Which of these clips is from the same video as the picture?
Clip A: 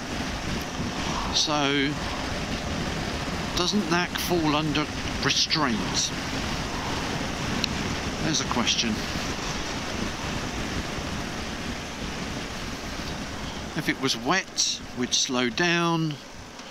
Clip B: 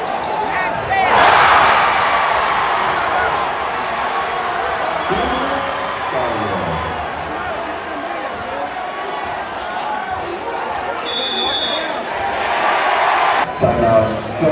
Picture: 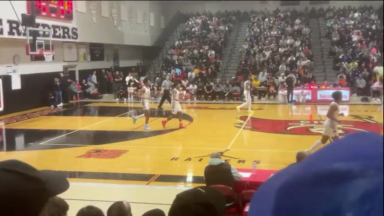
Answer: B